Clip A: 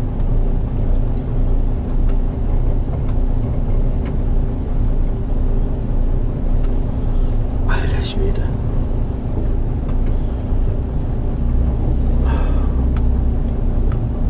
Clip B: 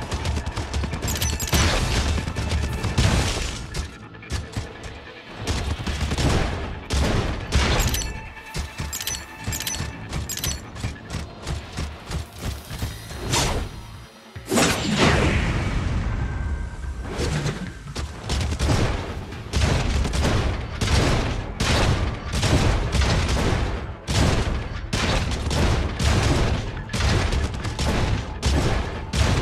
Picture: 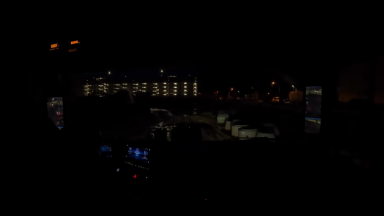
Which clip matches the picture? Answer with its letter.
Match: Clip A